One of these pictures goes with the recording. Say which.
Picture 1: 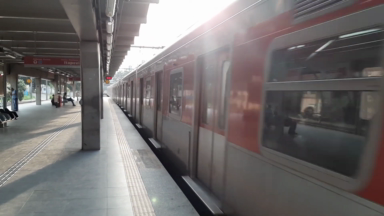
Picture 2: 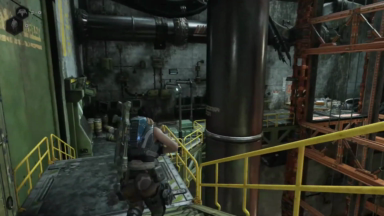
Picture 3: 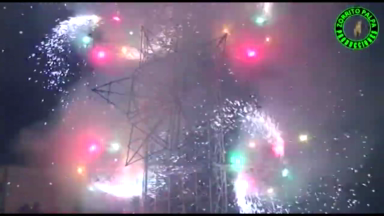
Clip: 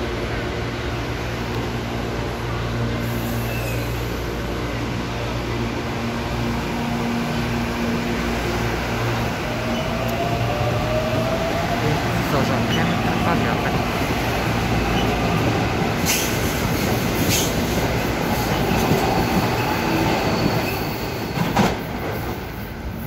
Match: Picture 1